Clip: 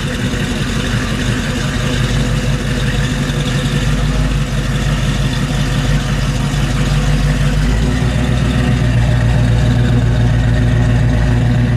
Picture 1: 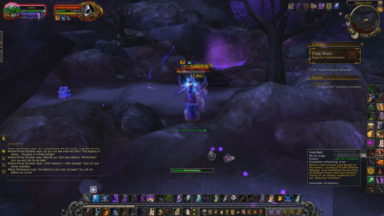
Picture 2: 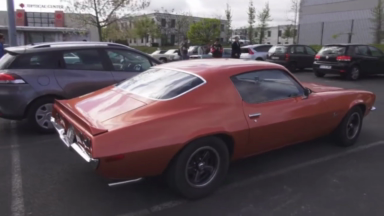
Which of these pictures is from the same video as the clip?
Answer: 2